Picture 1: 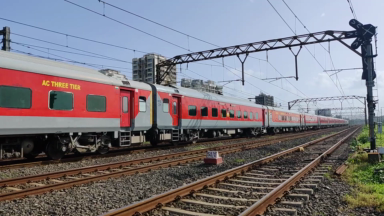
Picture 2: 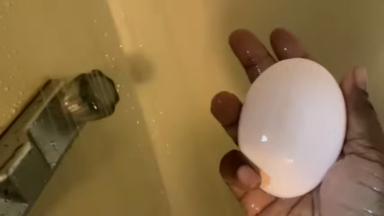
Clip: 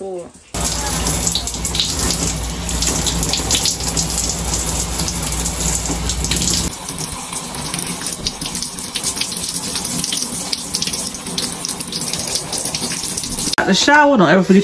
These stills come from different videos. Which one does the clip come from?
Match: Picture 2